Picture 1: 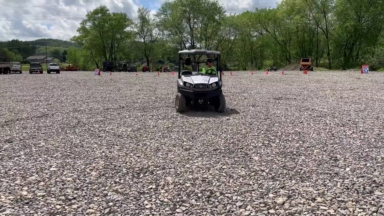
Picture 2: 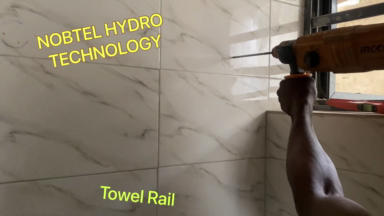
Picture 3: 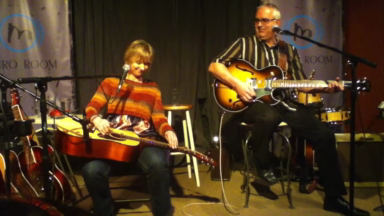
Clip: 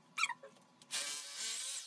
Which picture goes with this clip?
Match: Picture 2